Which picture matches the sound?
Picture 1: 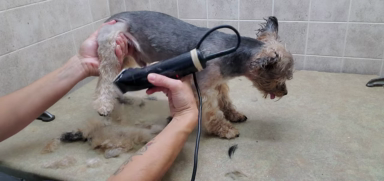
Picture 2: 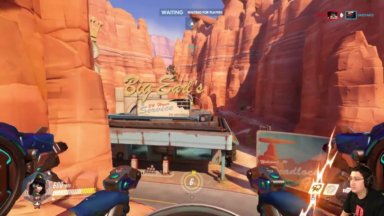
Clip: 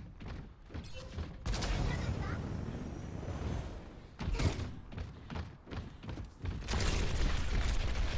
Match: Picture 2